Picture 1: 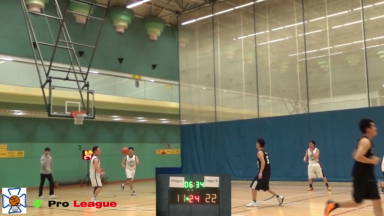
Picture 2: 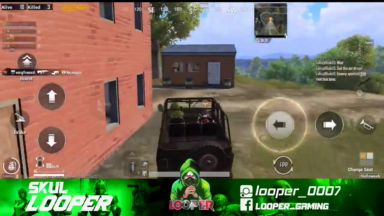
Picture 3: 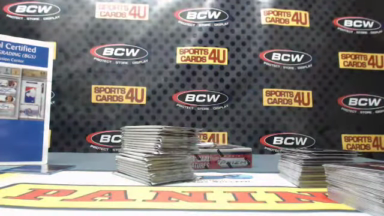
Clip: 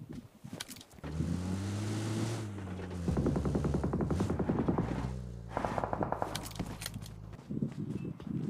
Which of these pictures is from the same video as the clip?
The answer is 2